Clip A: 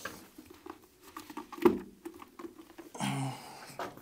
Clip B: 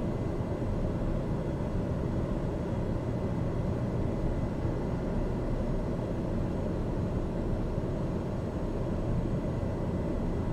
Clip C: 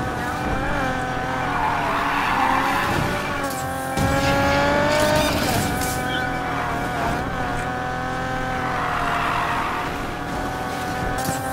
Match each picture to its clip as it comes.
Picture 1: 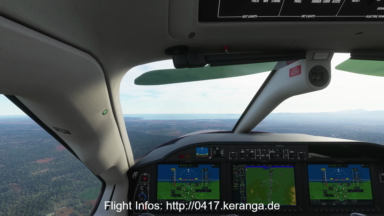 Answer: B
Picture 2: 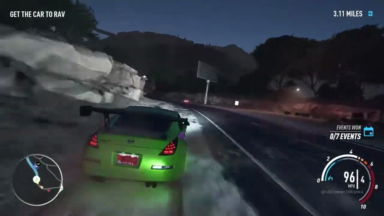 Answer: C